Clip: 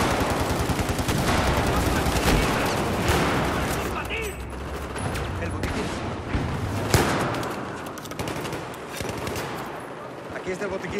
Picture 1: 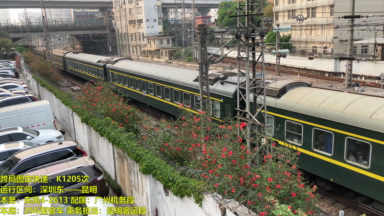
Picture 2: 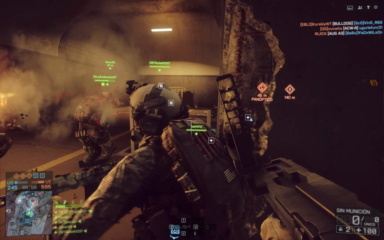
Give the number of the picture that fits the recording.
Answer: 2